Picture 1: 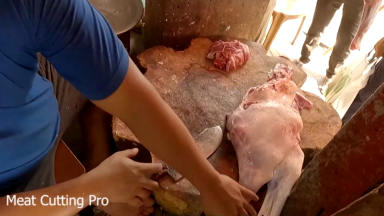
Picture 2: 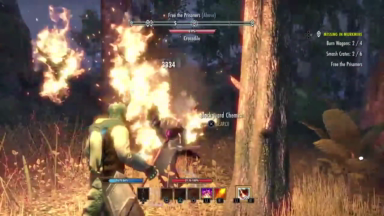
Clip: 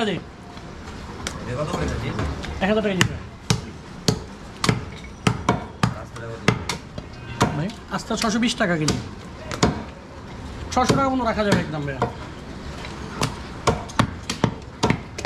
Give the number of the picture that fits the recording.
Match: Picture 1